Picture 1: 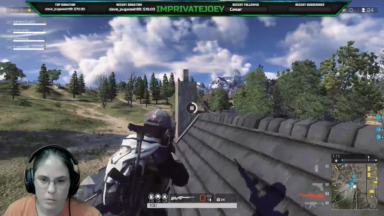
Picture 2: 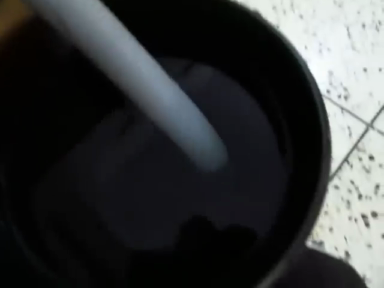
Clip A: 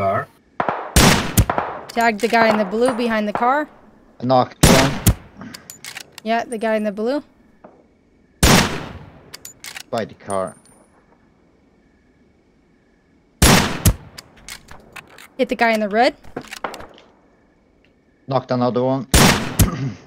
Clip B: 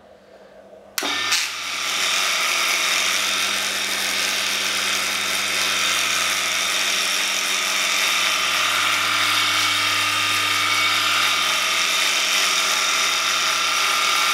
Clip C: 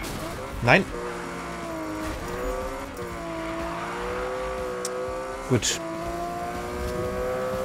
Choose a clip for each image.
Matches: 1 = A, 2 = B